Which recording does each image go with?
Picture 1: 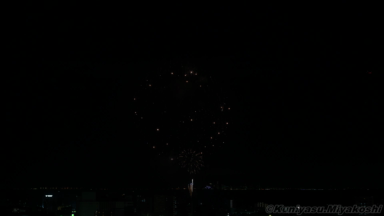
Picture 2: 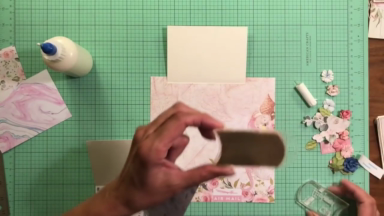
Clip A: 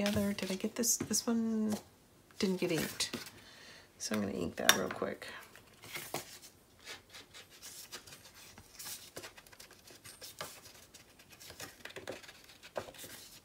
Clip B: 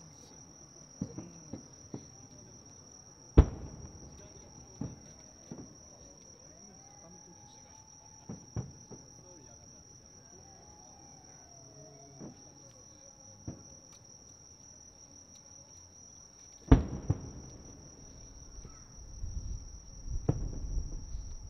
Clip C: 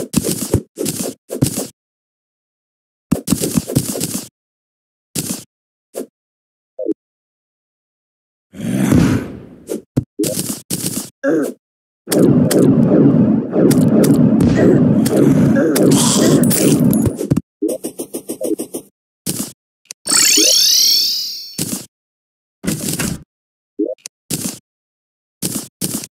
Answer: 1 B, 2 A